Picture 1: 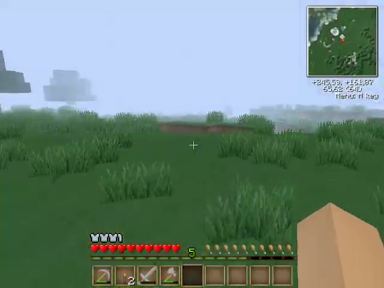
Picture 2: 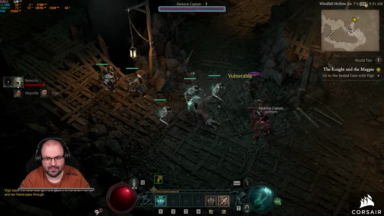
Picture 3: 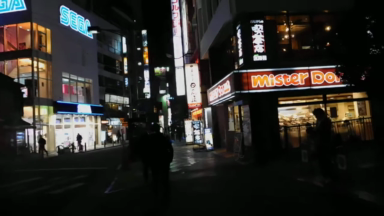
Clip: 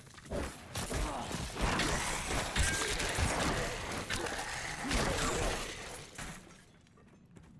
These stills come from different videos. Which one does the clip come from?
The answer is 2